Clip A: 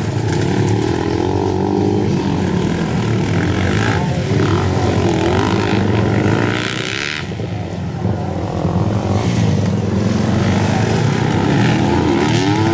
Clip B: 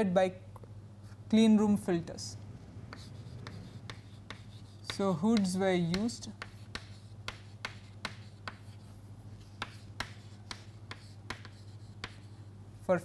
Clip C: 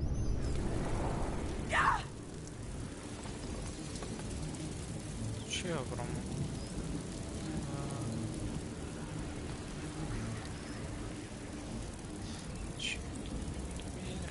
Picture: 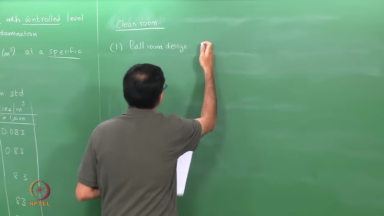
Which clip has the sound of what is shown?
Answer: B